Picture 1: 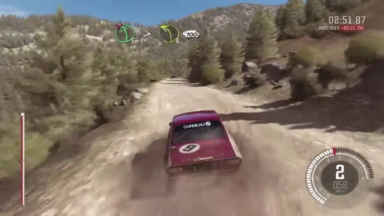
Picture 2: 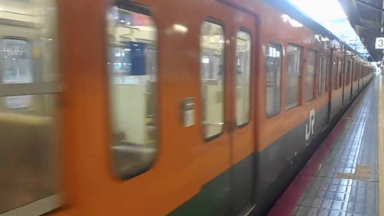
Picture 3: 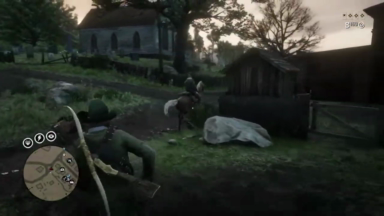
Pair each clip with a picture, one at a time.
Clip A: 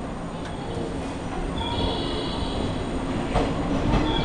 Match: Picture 2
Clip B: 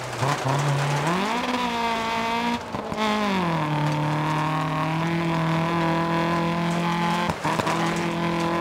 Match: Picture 1